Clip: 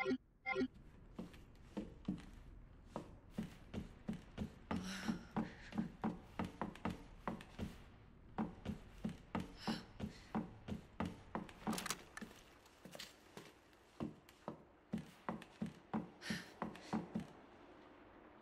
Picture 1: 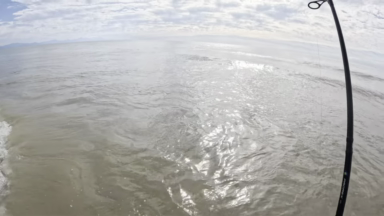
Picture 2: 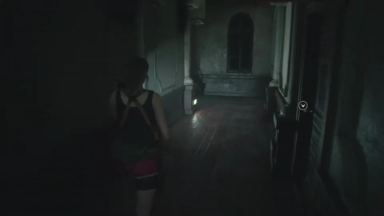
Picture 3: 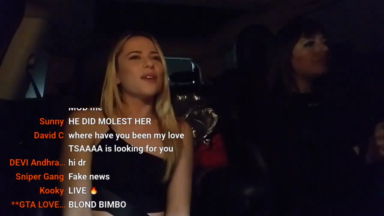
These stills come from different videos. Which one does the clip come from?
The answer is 2